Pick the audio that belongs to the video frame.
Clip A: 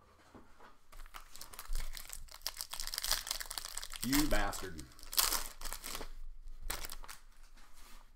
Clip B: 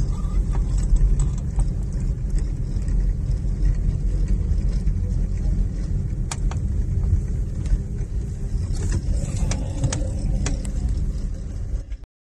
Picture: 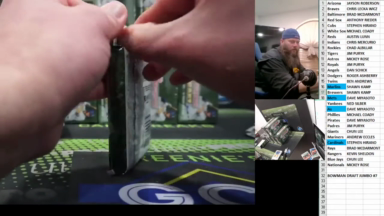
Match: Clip A